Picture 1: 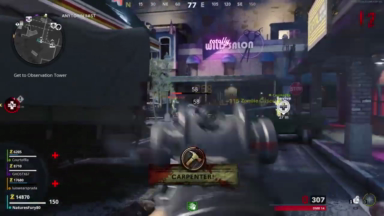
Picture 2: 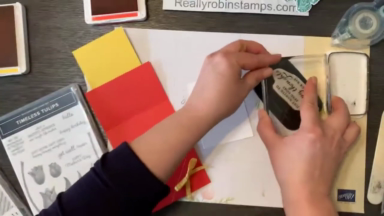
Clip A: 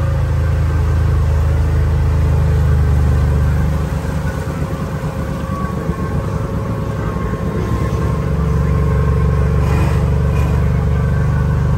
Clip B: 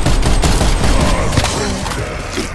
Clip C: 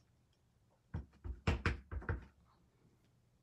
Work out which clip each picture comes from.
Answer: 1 B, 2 C